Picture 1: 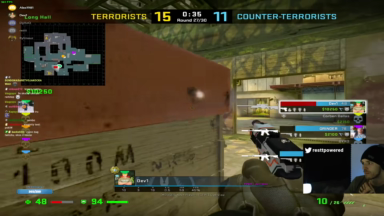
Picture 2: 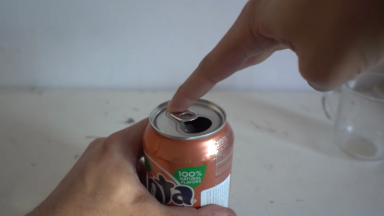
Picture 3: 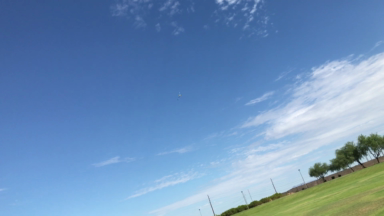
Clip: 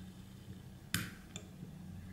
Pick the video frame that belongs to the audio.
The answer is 2